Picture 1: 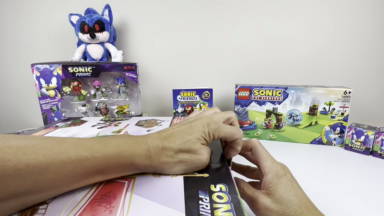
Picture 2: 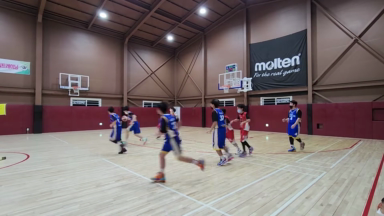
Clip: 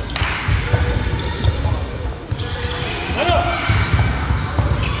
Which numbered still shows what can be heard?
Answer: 2